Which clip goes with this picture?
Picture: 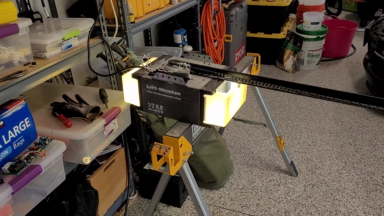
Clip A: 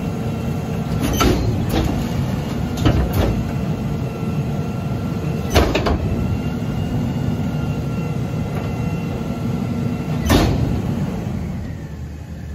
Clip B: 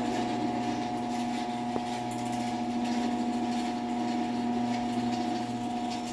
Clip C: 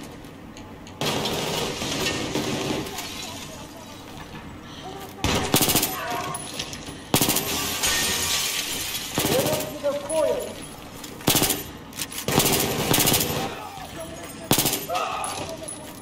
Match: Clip B